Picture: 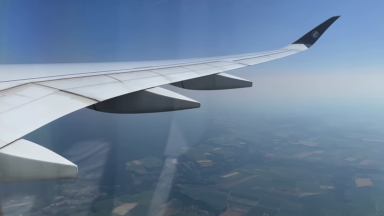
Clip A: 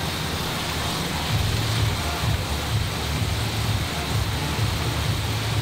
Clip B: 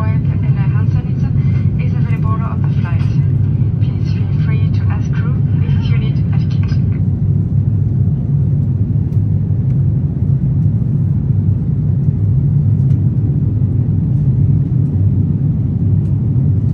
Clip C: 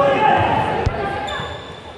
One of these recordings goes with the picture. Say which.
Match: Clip B